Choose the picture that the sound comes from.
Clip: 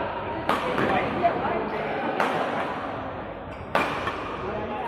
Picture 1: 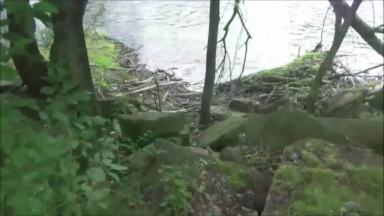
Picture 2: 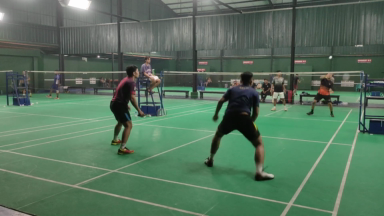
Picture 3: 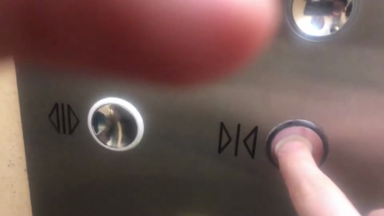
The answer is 2